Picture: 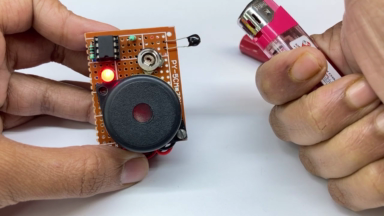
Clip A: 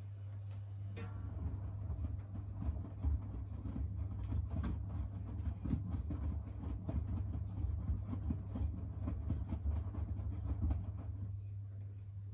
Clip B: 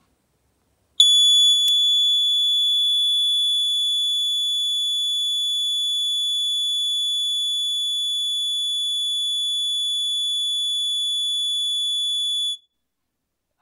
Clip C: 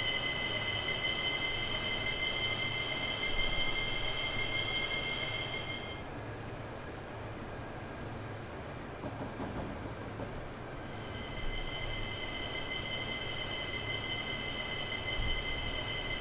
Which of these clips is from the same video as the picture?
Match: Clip B